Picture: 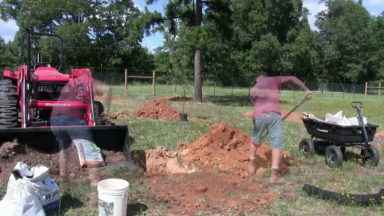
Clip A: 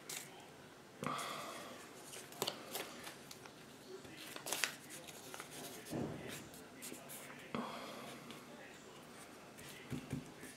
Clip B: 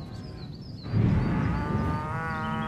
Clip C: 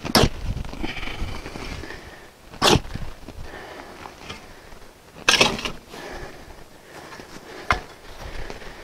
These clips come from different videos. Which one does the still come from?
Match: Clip C